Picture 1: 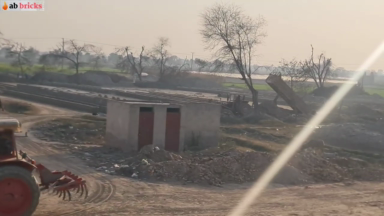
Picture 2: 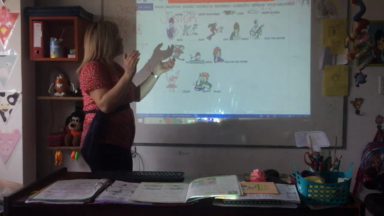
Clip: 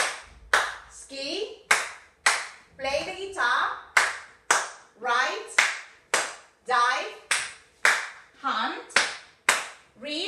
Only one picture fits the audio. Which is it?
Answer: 2